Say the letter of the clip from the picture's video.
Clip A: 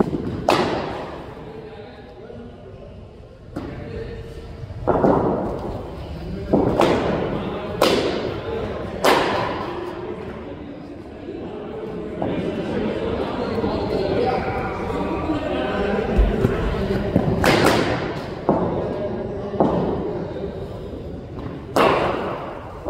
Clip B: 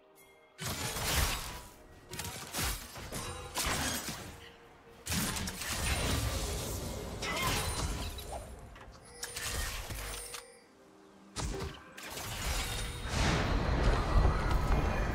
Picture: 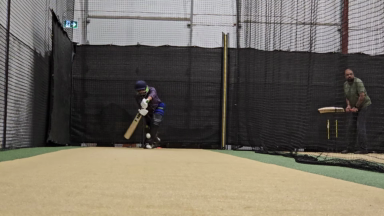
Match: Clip A